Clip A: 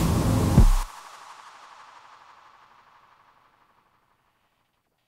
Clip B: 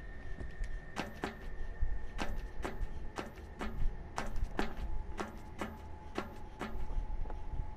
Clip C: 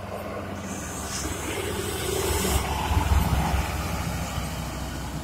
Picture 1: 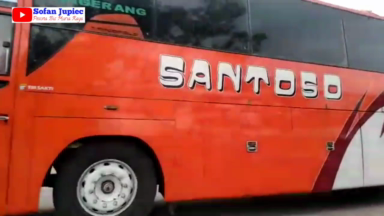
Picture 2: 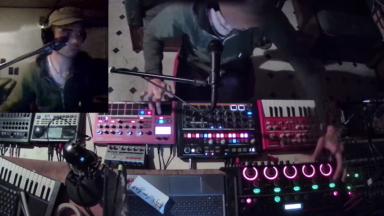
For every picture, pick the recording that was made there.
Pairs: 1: C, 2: A